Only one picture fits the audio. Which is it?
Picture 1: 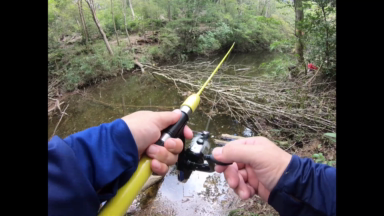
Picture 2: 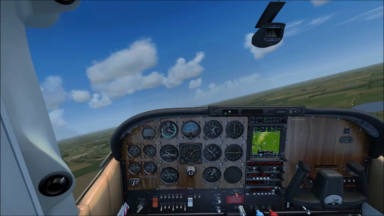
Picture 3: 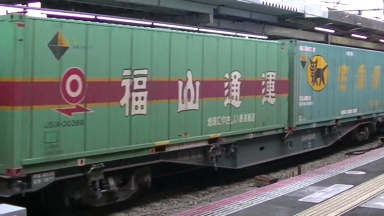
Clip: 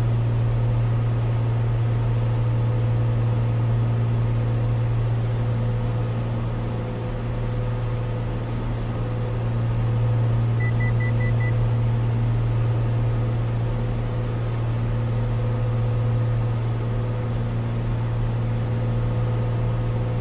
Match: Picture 2